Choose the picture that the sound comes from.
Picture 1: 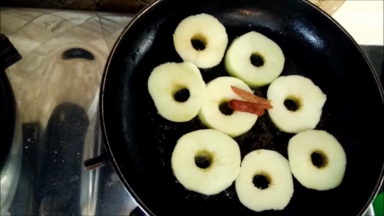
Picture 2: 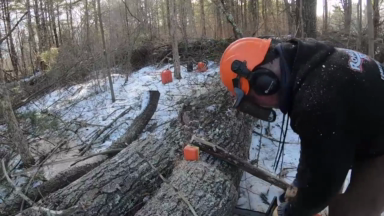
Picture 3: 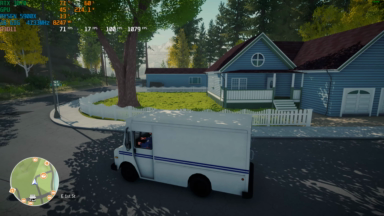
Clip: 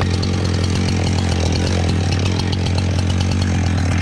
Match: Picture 2